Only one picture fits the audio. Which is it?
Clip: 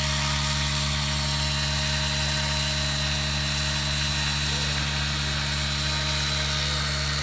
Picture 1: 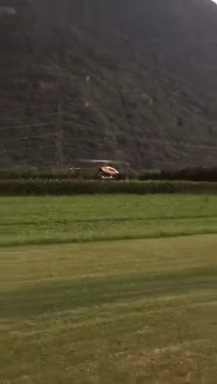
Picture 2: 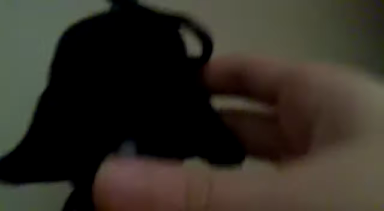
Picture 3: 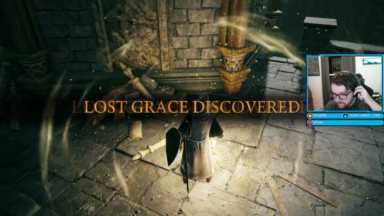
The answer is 1